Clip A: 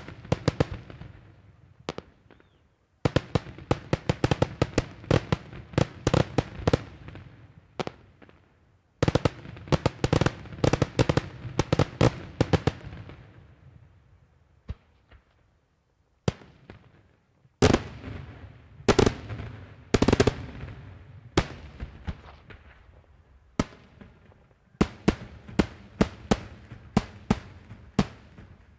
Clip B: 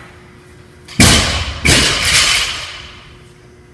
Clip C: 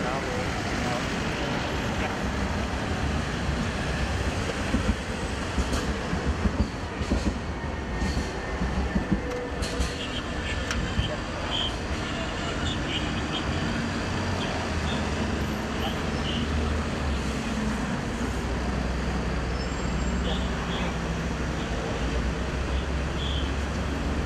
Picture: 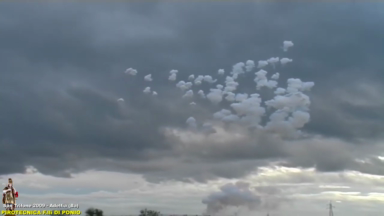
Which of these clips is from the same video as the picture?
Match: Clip A